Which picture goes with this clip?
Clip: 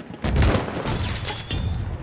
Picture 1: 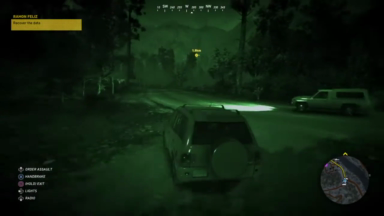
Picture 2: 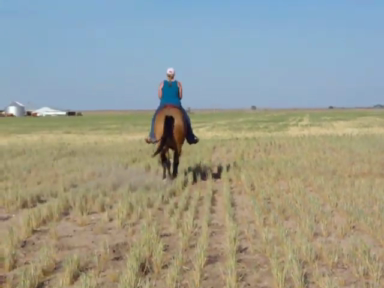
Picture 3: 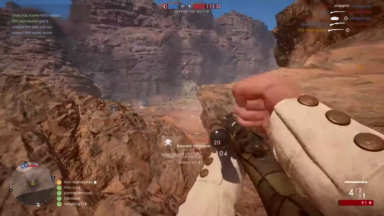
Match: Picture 3